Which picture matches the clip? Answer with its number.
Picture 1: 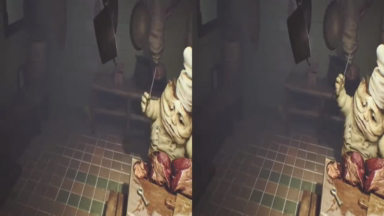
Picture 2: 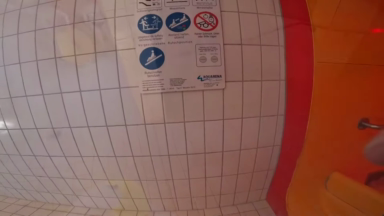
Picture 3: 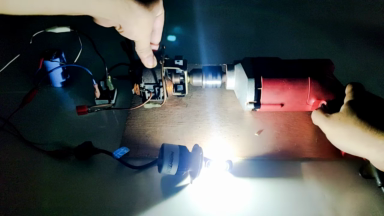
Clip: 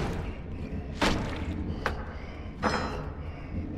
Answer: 1